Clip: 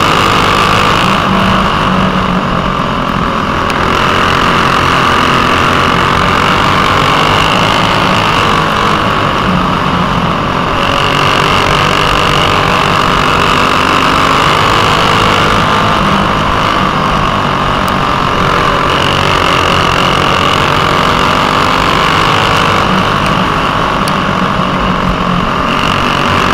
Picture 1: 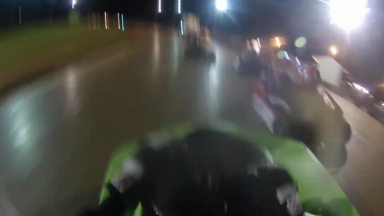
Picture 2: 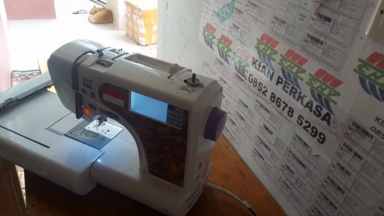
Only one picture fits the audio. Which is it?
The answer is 1